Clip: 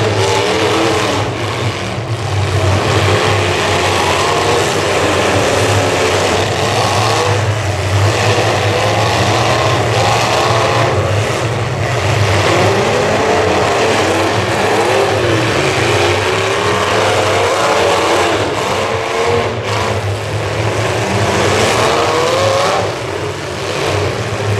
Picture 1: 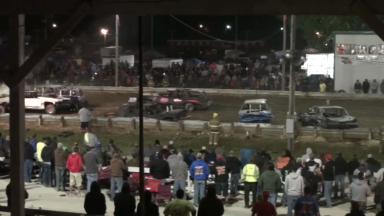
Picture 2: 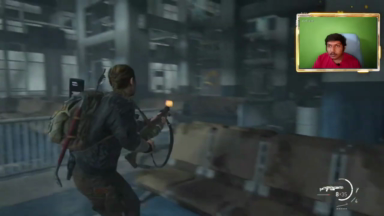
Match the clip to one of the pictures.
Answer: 1